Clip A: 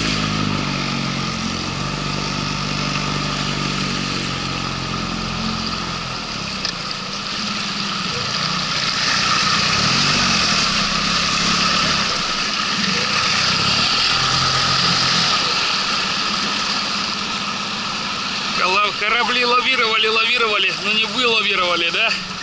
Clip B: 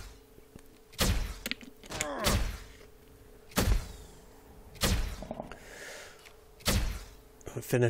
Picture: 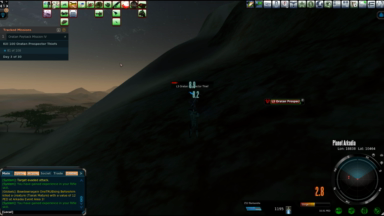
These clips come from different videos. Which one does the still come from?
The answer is B